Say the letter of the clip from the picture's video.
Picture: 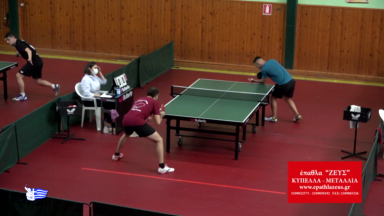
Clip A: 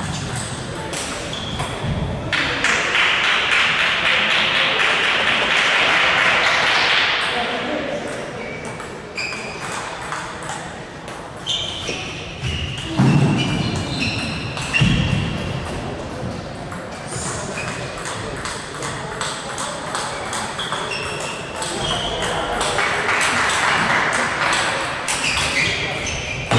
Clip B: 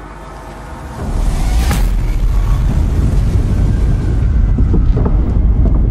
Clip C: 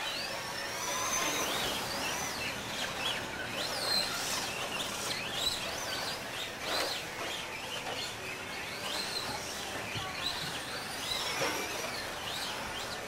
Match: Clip A